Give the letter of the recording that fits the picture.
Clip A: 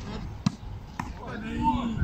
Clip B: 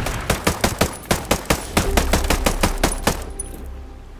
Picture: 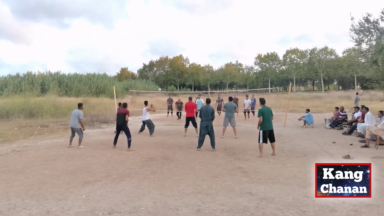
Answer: A